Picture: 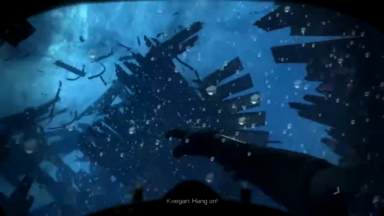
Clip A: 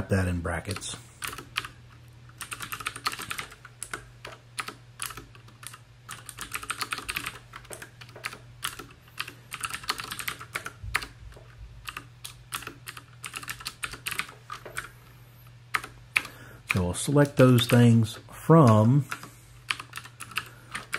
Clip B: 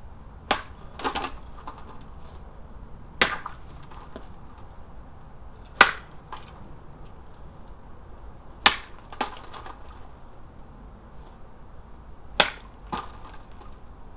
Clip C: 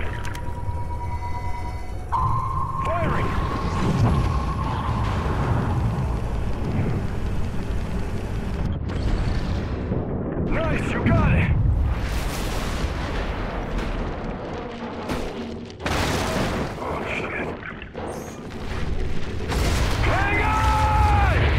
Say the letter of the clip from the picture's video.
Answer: C